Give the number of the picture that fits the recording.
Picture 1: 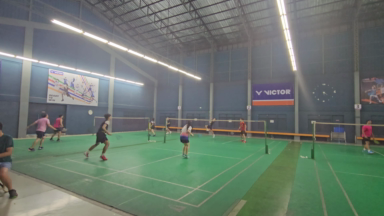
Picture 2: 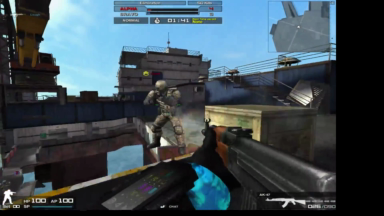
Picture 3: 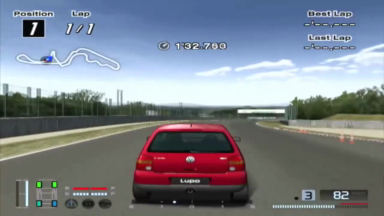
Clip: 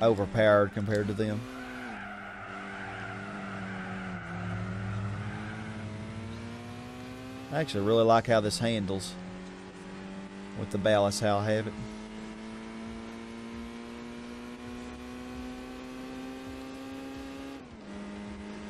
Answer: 3